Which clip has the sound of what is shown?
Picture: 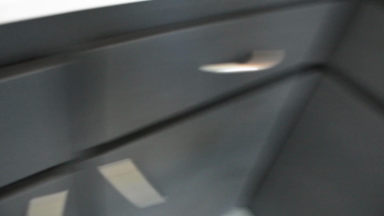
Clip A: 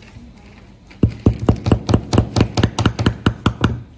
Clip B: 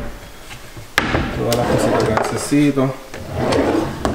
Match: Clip B